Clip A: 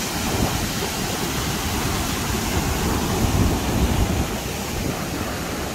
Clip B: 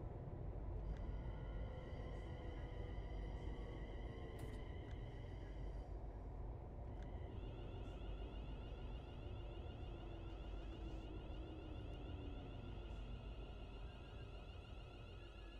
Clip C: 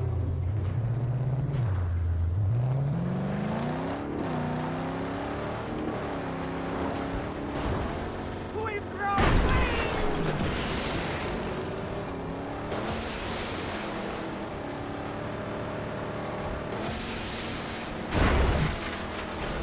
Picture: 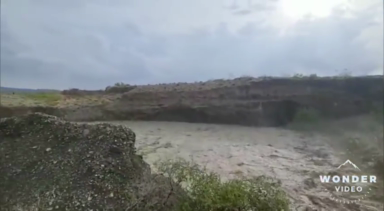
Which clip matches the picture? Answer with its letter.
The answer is A